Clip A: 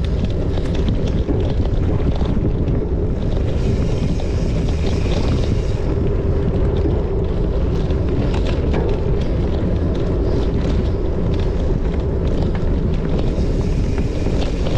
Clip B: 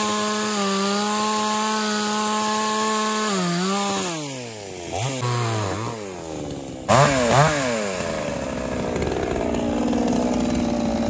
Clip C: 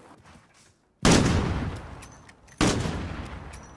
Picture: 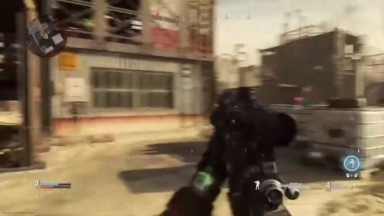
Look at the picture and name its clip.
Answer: C